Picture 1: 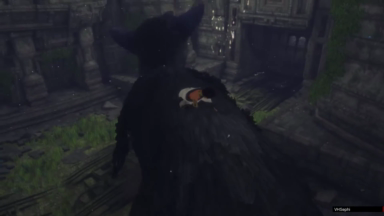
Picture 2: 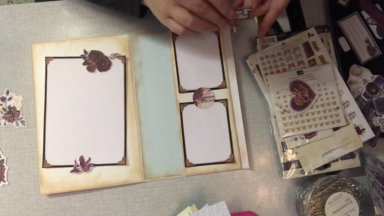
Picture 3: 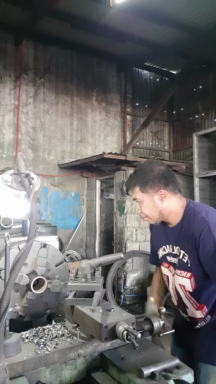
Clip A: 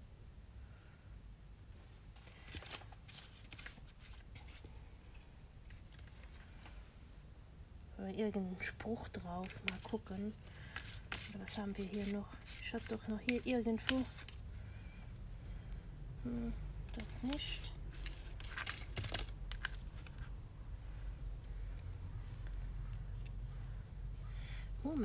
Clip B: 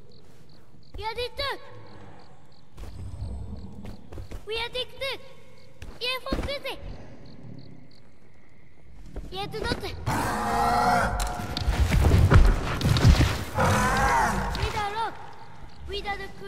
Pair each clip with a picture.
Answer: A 2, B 1